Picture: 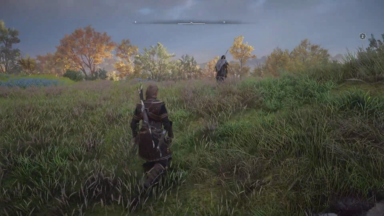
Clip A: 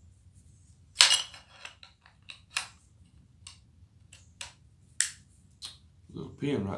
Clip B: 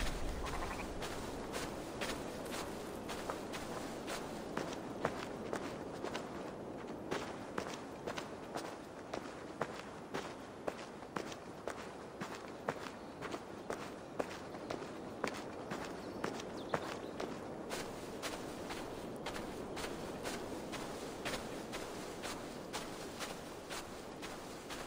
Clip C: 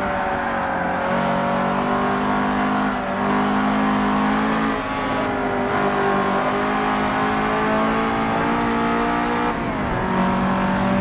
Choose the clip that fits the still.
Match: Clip B